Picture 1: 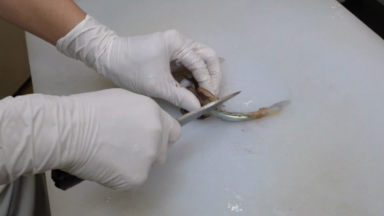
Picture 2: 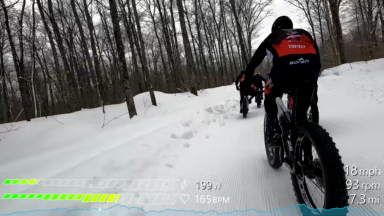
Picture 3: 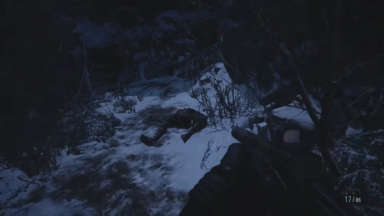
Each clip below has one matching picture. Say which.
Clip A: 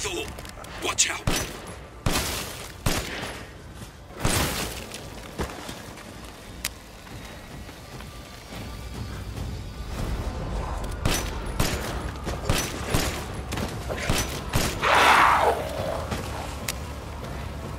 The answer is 3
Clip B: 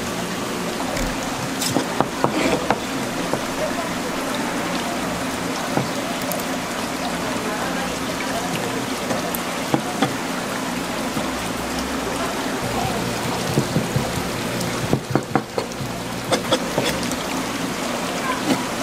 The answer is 1